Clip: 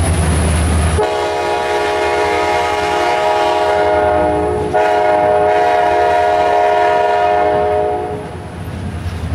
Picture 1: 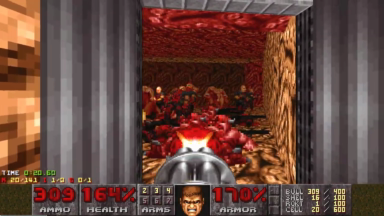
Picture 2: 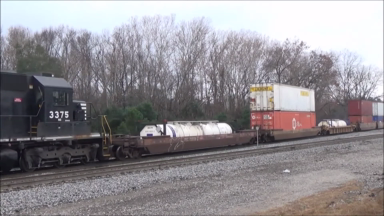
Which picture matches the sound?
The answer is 2